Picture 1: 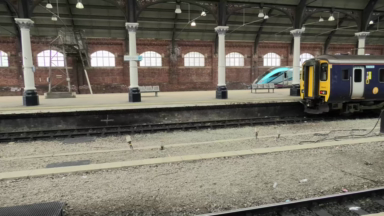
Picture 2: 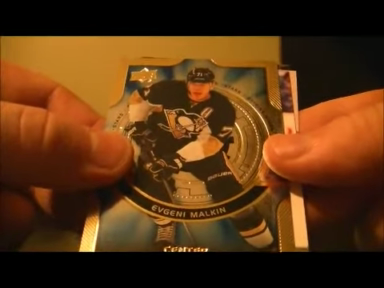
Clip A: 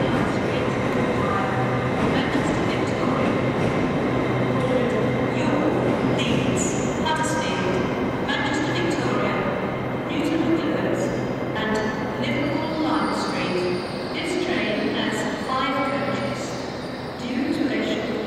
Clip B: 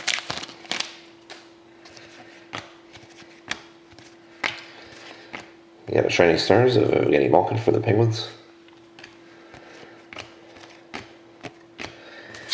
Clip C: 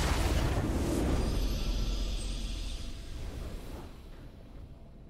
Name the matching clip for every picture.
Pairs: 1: A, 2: B